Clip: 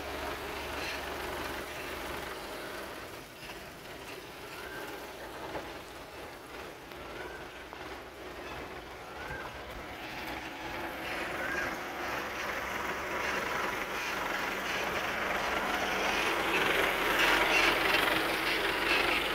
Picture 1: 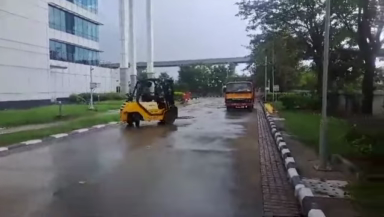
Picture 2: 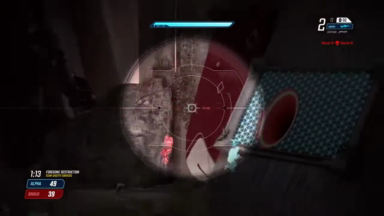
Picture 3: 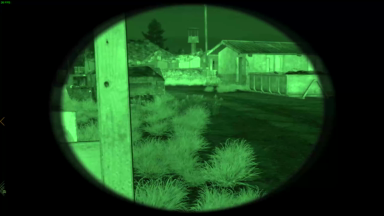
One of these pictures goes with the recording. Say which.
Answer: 1